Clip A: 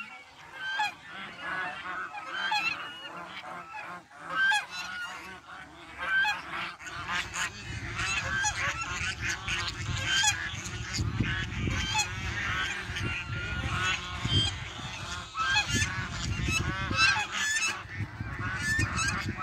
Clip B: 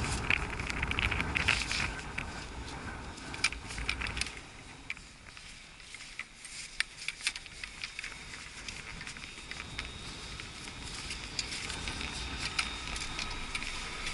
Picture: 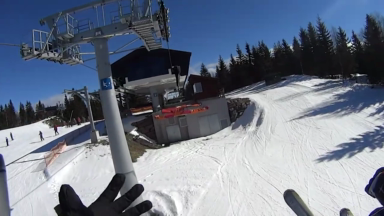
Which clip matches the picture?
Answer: B